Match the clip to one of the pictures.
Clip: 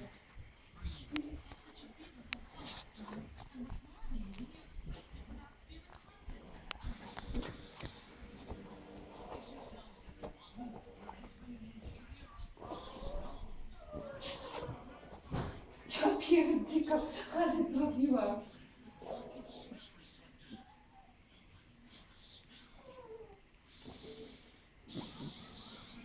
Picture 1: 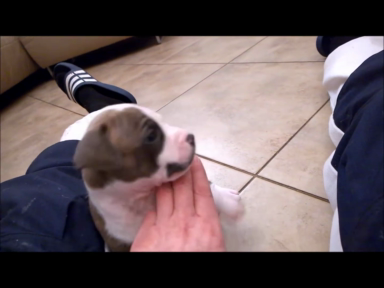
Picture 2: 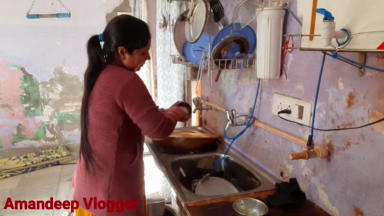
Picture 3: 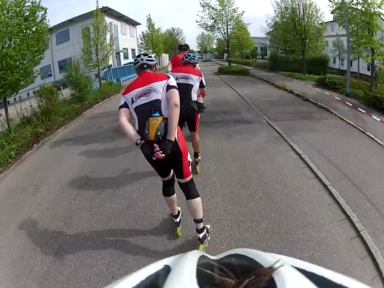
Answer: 1